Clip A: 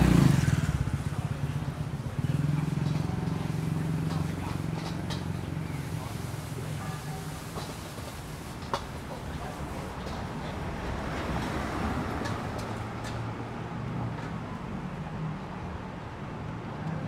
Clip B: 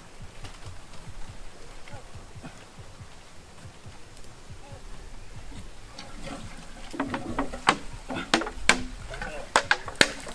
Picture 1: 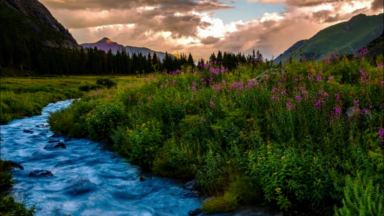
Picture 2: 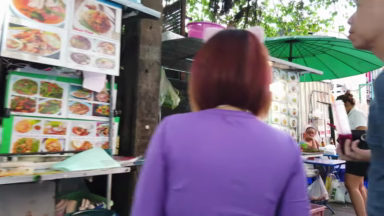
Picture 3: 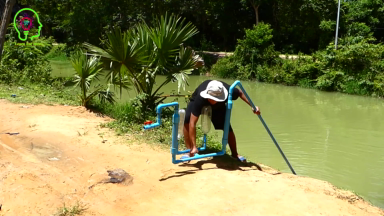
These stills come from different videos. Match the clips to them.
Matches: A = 2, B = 3